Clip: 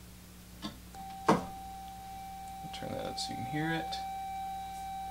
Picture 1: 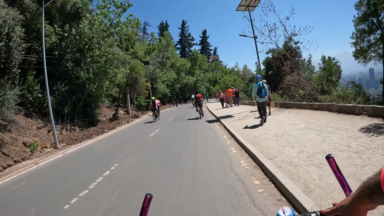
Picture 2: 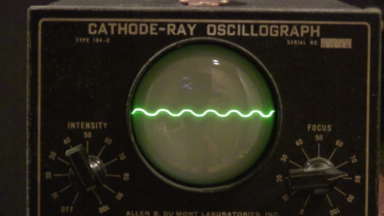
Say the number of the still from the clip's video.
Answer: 2